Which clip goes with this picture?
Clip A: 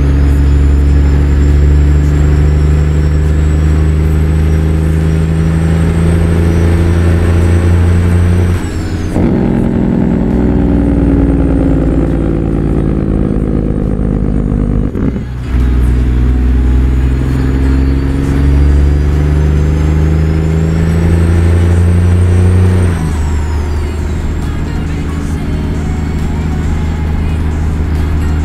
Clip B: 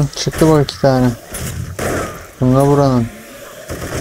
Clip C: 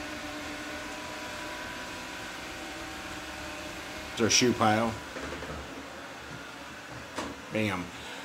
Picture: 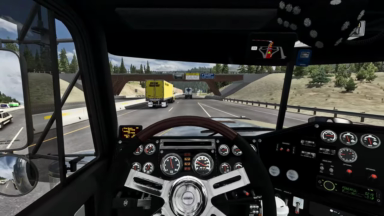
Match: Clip A